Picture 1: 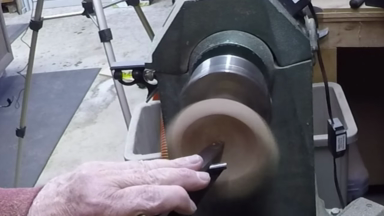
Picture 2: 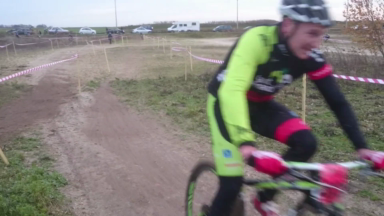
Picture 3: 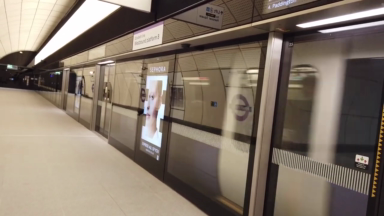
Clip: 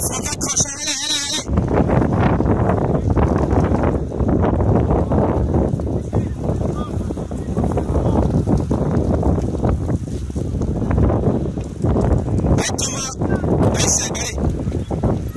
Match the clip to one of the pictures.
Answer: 2